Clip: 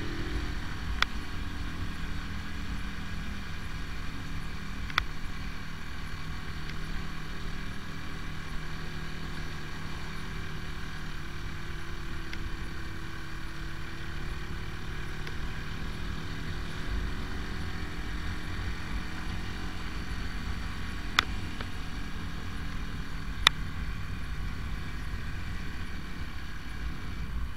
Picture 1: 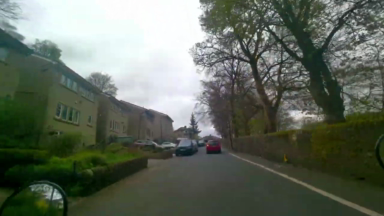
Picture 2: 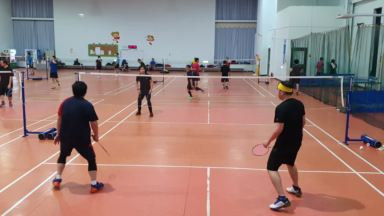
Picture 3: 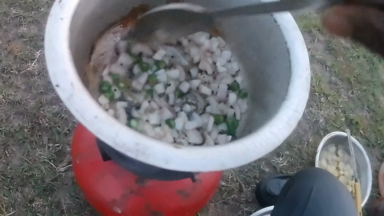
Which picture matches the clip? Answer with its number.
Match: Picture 1